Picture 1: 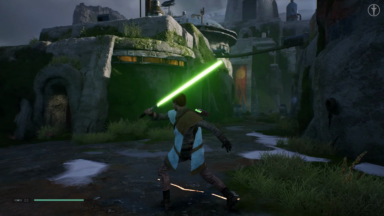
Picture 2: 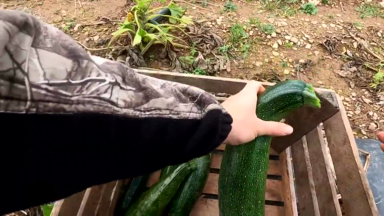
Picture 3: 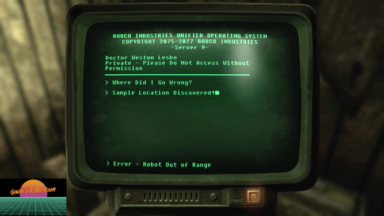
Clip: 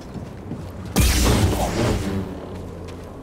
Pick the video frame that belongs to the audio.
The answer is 1